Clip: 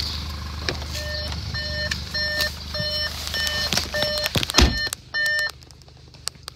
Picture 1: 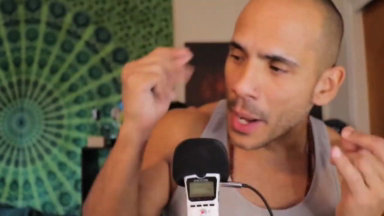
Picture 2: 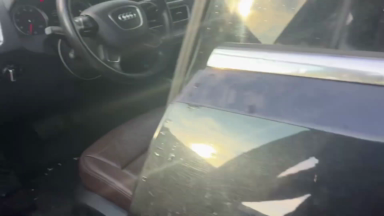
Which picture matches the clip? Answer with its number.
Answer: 2